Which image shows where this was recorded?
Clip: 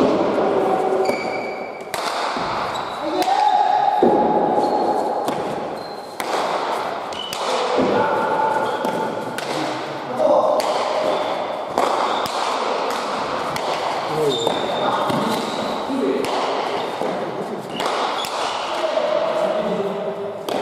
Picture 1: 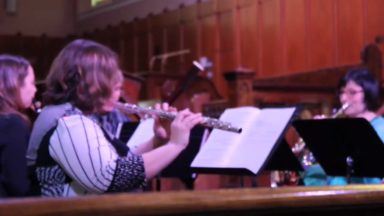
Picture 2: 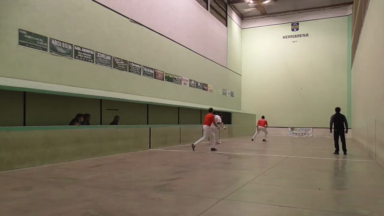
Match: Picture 2